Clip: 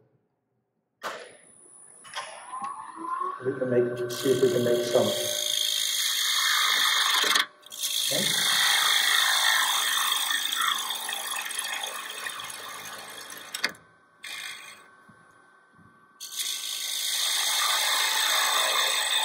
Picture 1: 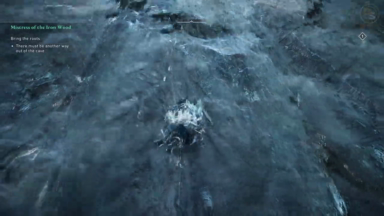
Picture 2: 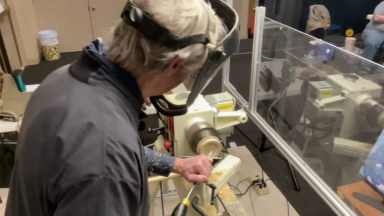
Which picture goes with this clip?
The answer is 2